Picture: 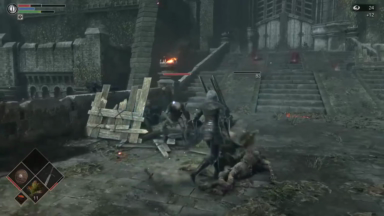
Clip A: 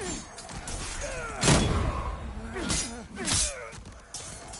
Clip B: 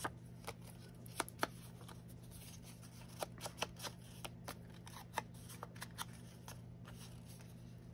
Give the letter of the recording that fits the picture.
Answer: A